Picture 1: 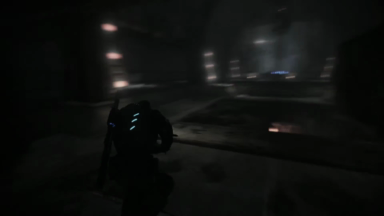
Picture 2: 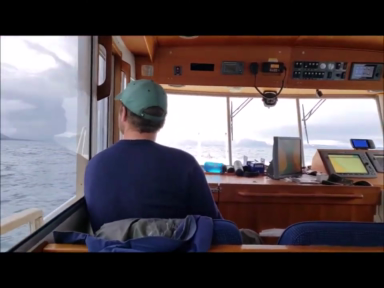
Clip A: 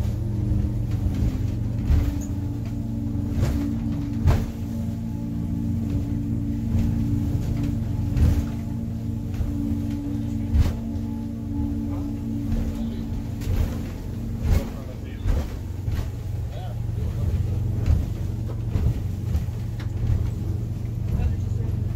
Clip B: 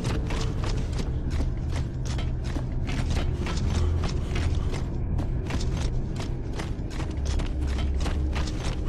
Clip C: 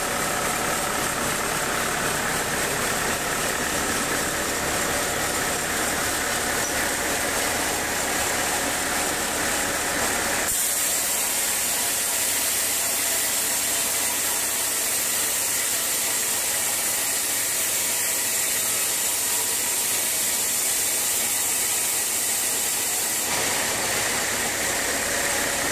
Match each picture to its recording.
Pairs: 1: B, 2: A